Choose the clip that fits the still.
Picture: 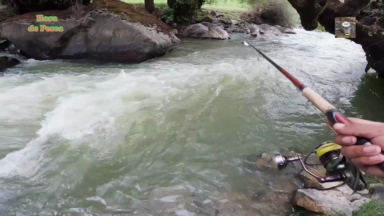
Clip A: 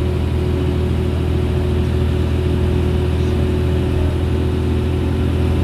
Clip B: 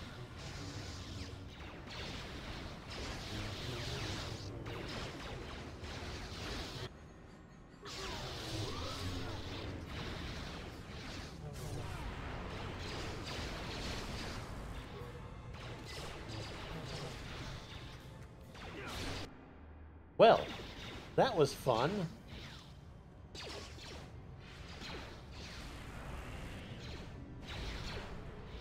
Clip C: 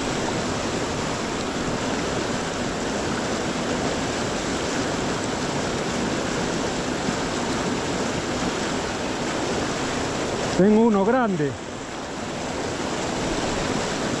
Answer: C